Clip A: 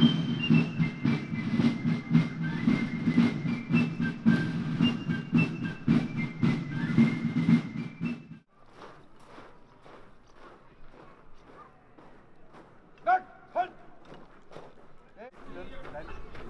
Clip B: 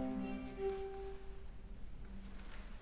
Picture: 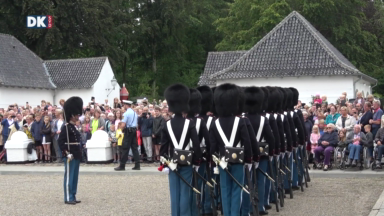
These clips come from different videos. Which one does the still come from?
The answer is A